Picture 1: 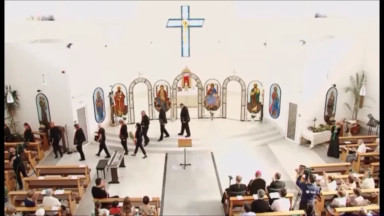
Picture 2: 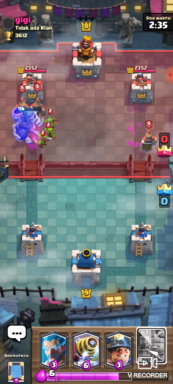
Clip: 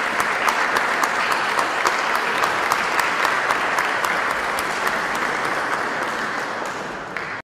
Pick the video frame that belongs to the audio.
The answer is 1